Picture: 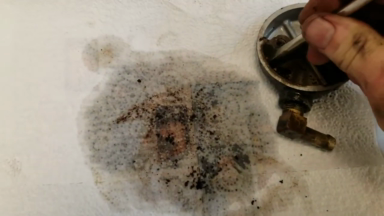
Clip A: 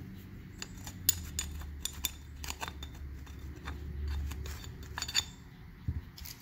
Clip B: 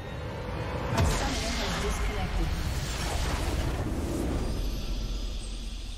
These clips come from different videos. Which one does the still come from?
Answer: A